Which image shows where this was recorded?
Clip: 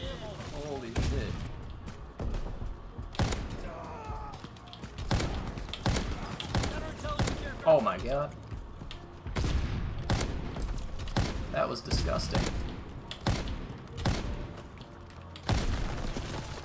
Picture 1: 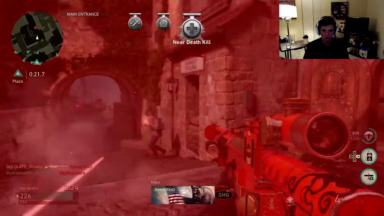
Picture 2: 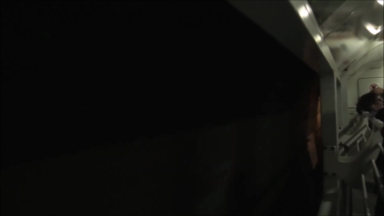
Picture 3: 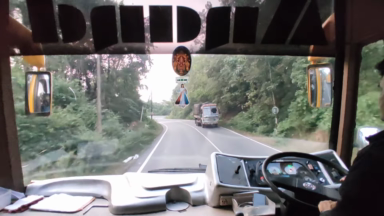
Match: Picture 1